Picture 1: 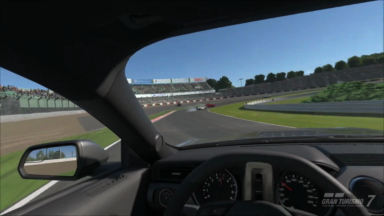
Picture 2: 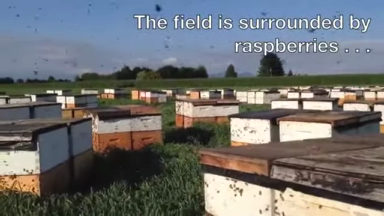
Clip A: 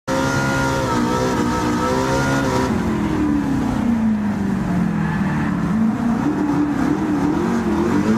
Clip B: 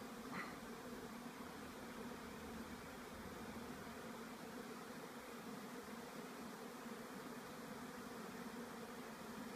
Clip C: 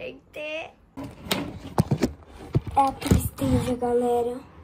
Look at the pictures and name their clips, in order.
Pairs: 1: A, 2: B